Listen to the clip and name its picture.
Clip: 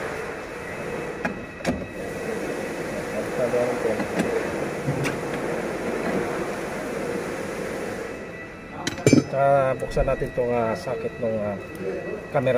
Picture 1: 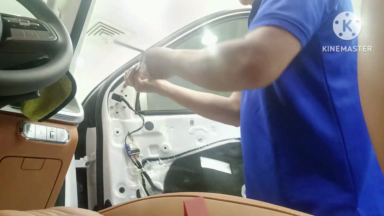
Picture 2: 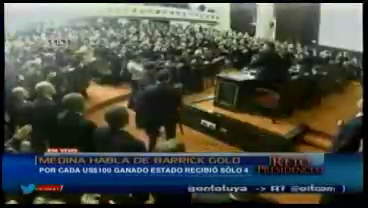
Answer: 1